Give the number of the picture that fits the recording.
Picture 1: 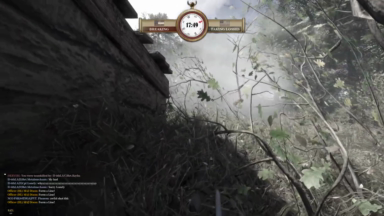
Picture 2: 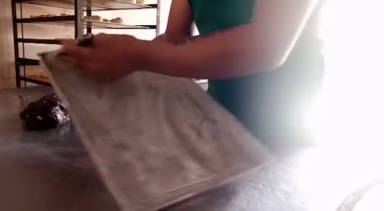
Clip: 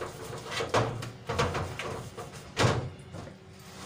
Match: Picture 2